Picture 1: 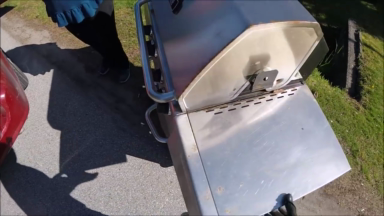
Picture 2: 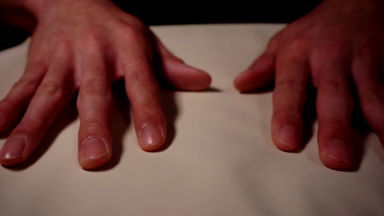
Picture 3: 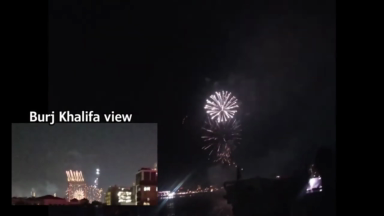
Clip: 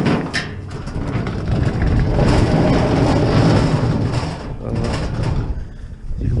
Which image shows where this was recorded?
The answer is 1